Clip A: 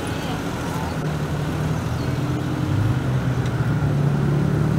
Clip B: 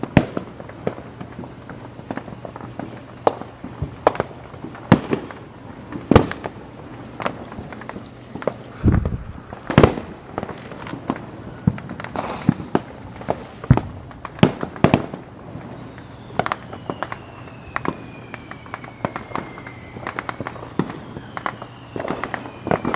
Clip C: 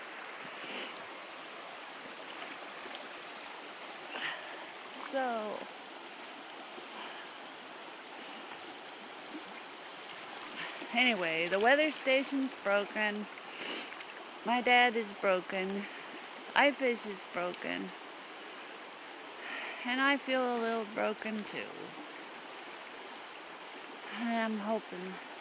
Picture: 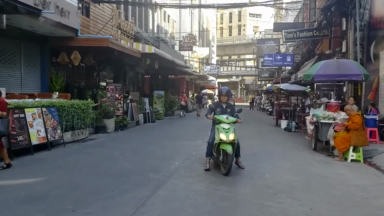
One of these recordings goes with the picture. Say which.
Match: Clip A